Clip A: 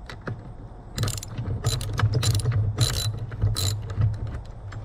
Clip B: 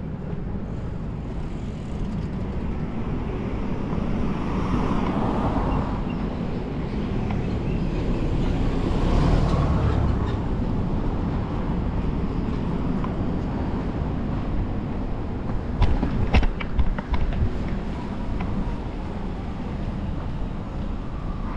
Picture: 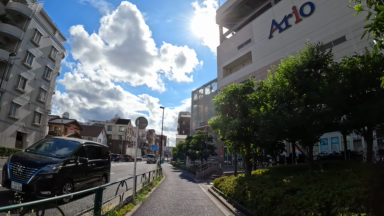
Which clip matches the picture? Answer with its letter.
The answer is B